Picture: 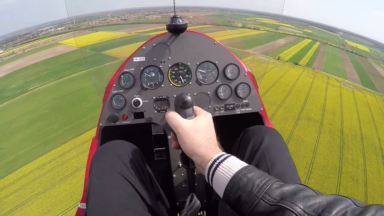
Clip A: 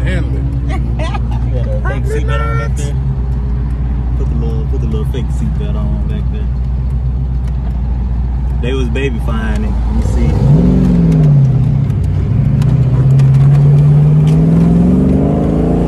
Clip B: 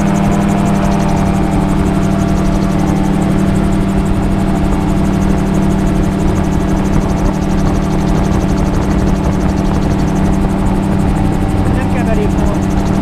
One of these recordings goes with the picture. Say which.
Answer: B